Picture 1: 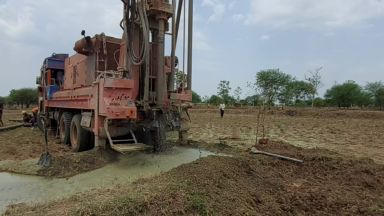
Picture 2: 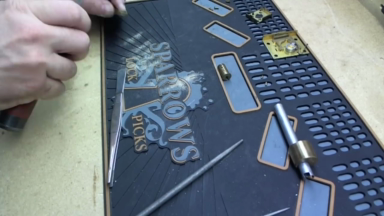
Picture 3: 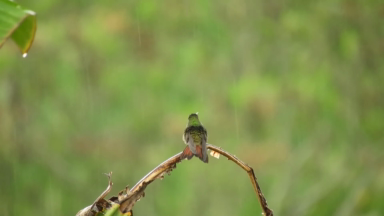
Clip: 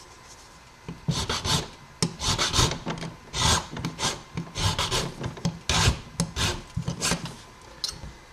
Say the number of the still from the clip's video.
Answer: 2